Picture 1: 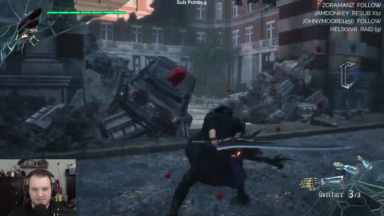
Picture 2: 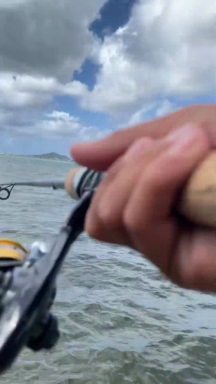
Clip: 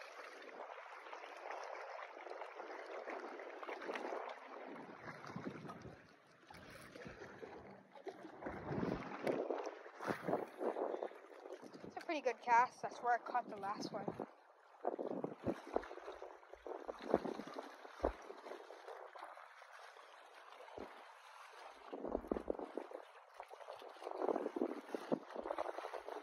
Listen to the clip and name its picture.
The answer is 2